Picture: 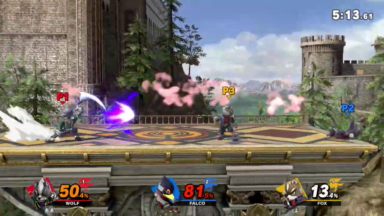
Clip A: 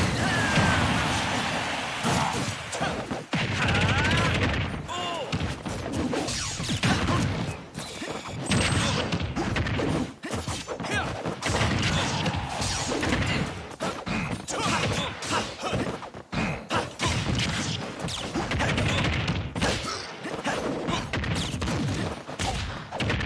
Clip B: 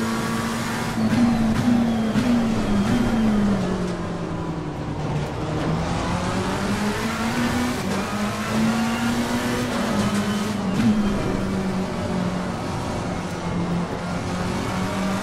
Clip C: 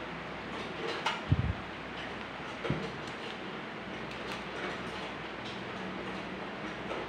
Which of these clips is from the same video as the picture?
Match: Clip A